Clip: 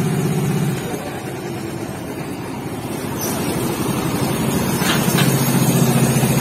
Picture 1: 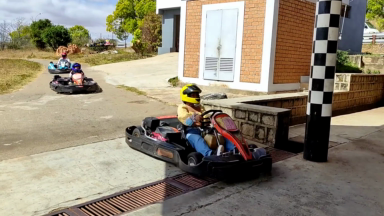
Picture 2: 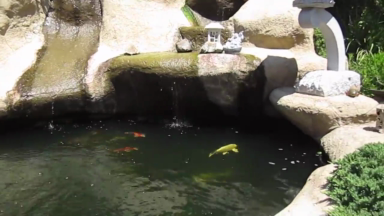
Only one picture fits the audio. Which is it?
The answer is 1